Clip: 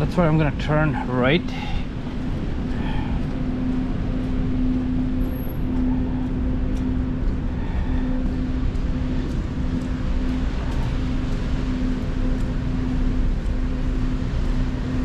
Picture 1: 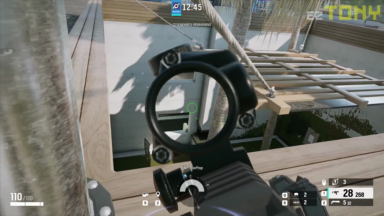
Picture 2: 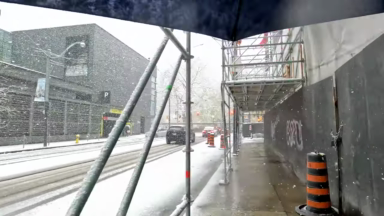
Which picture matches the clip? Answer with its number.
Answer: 2